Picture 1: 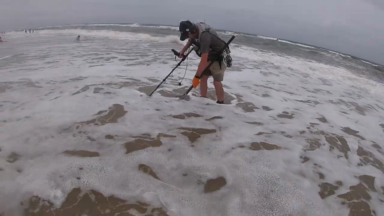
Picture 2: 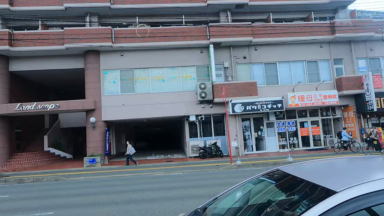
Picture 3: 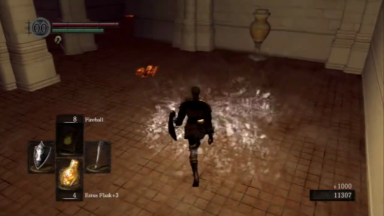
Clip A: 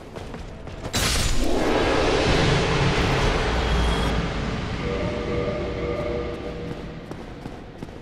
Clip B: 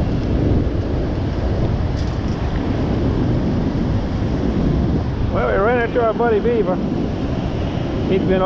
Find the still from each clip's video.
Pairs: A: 3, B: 1